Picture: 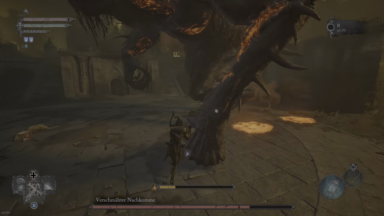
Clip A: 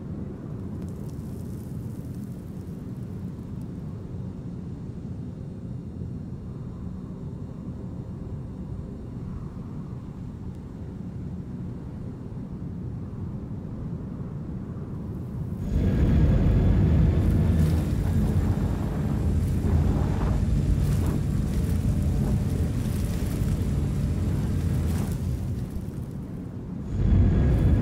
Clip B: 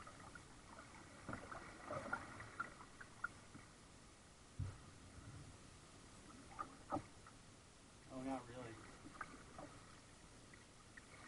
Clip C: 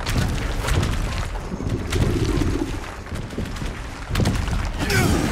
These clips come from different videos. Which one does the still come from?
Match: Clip C